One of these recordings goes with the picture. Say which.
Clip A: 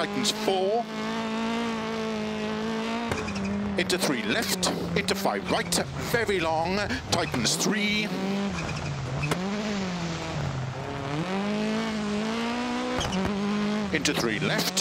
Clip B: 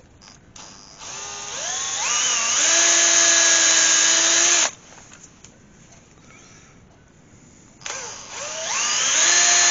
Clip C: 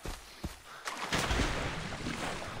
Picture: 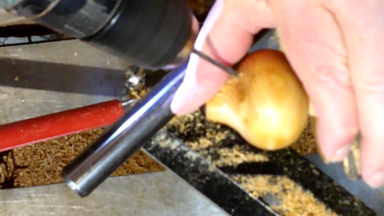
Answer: B